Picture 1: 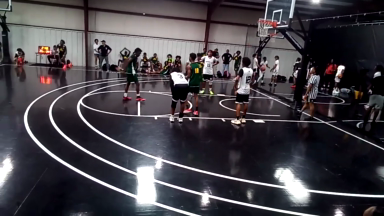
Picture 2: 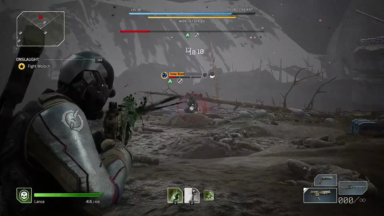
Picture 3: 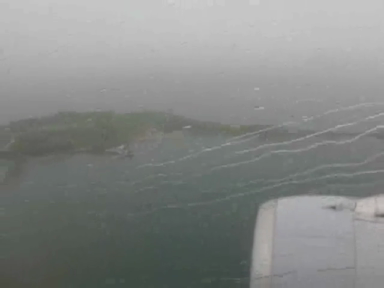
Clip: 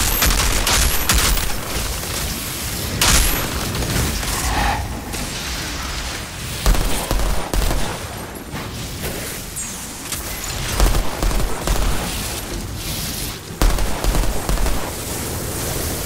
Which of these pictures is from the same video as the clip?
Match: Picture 2